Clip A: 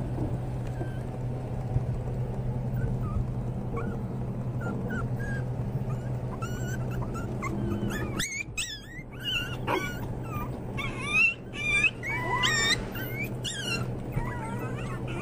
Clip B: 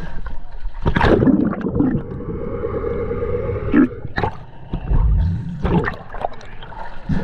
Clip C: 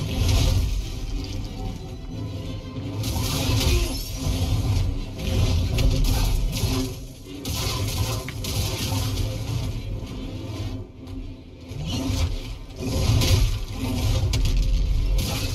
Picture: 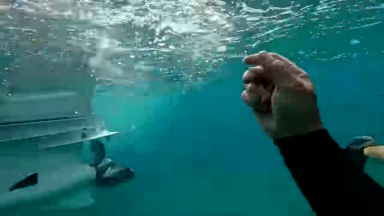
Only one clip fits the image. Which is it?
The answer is B